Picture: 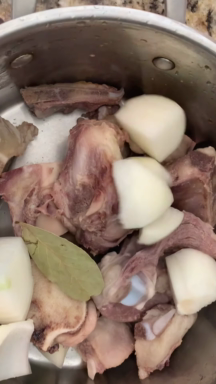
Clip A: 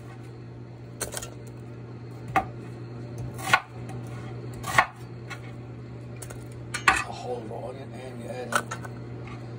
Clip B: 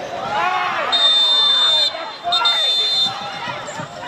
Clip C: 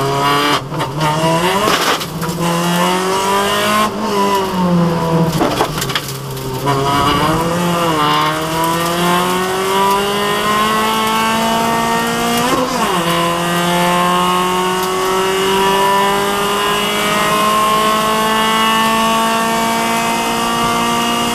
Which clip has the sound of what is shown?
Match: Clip A